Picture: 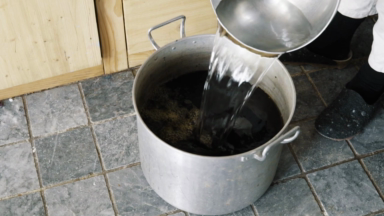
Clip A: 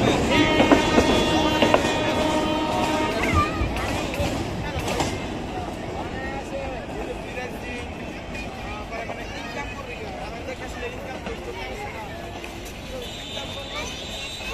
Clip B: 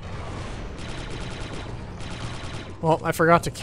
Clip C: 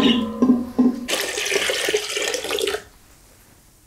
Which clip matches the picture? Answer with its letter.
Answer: C